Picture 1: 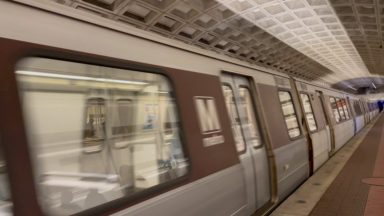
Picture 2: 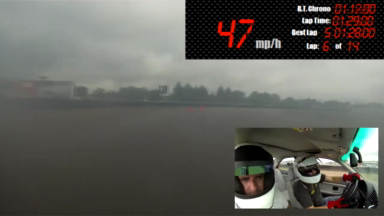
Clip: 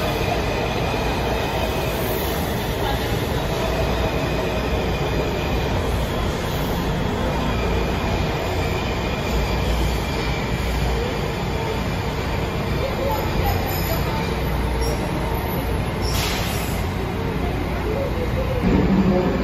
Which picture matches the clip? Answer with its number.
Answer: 1